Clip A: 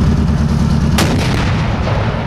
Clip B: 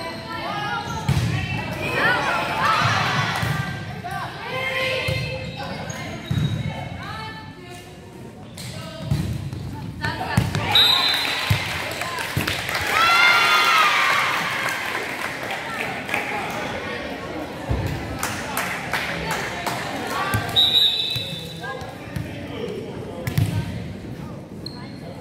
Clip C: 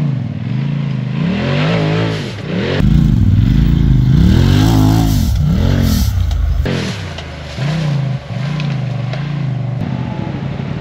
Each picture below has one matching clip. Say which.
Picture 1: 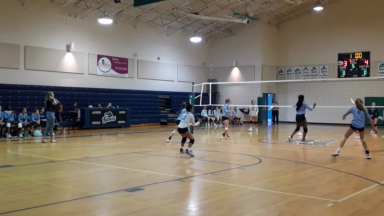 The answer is B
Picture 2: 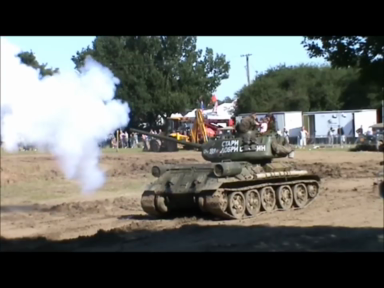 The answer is A